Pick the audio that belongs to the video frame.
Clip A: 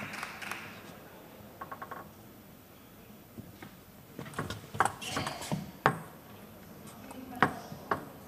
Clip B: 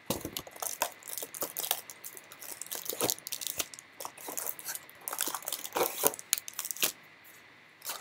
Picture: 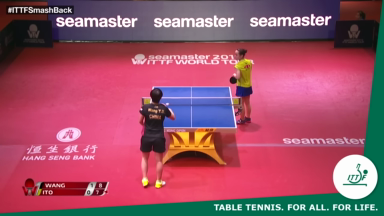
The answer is A